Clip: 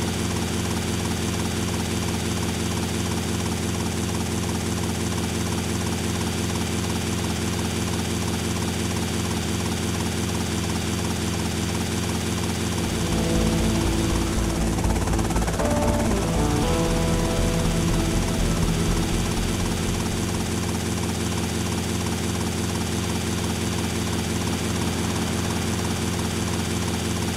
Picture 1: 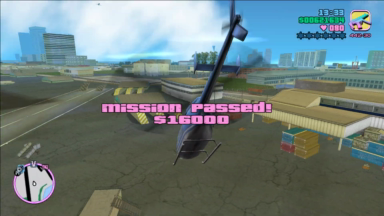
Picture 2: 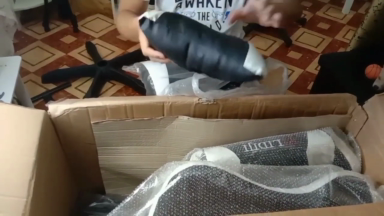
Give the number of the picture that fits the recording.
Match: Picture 1